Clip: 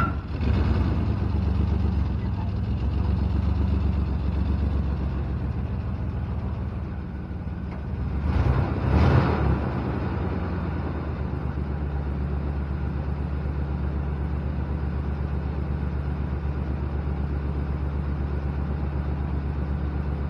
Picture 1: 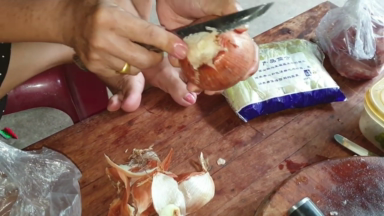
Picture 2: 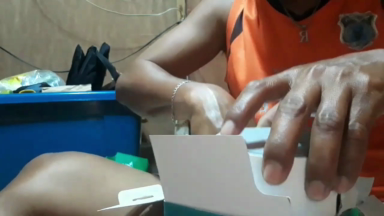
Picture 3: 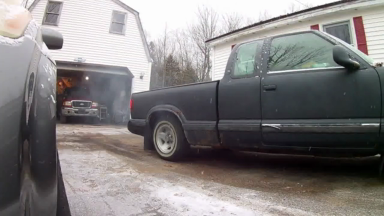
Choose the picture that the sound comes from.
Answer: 3